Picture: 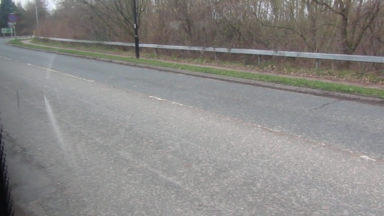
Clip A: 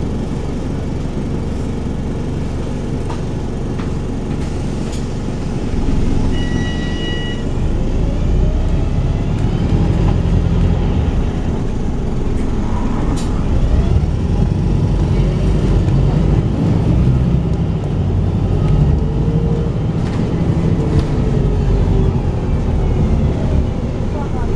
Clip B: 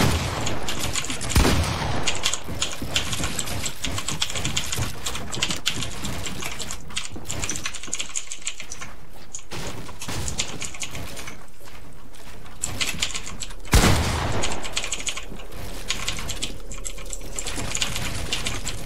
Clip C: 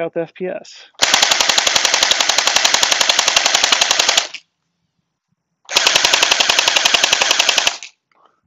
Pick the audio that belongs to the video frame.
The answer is A